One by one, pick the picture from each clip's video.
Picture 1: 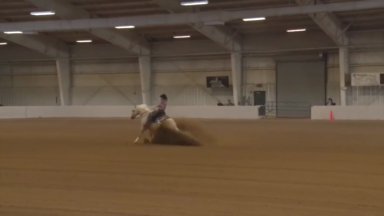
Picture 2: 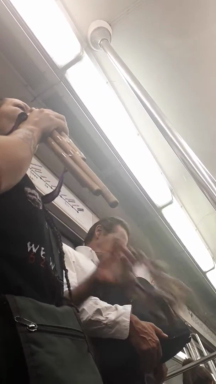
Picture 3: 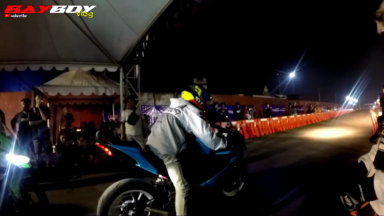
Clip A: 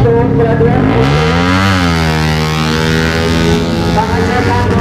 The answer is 3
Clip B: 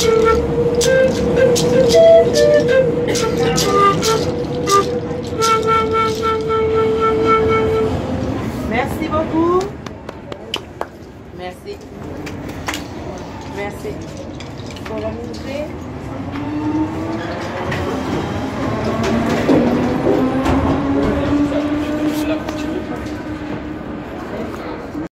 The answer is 2